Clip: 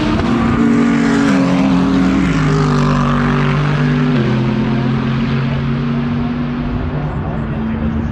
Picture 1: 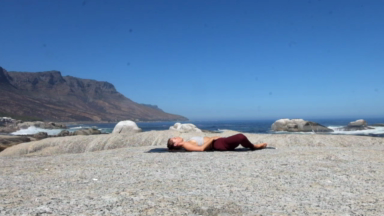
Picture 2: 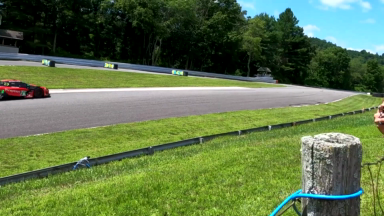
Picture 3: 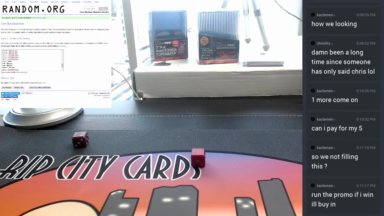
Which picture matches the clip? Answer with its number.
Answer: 2